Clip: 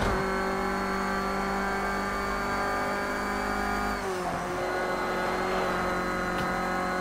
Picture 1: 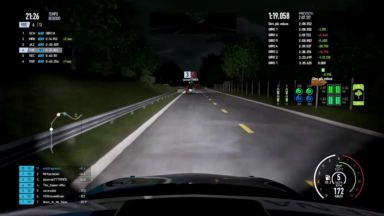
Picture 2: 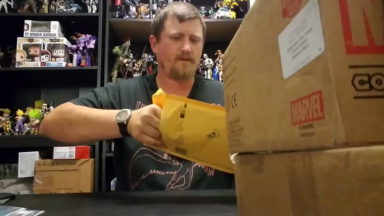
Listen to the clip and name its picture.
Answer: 1